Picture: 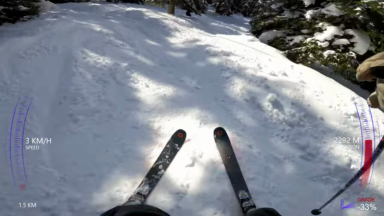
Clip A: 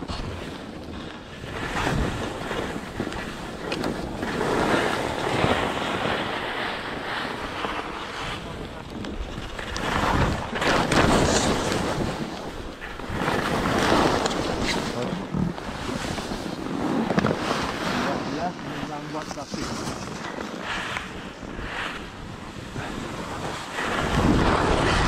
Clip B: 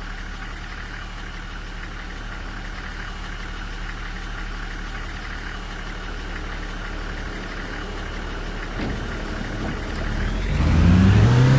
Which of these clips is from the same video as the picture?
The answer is A